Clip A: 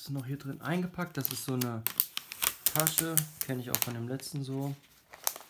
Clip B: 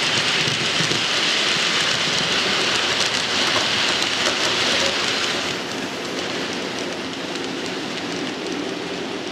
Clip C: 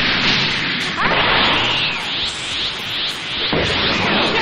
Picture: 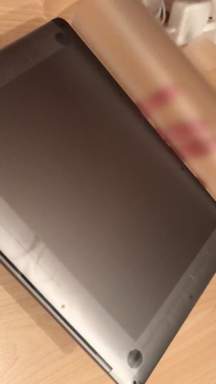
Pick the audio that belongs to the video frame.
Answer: A